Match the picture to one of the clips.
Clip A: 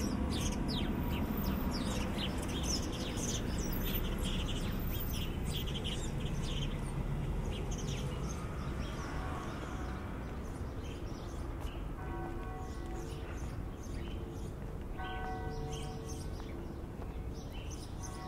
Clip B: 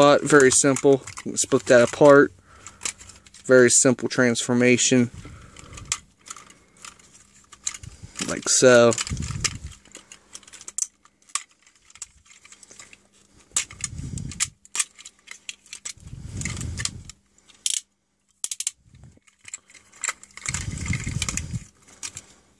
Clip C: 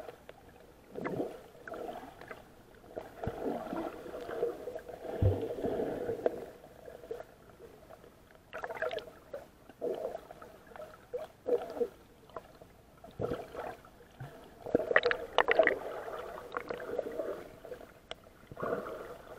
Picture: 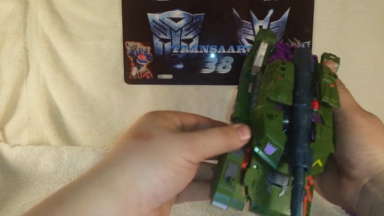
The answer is B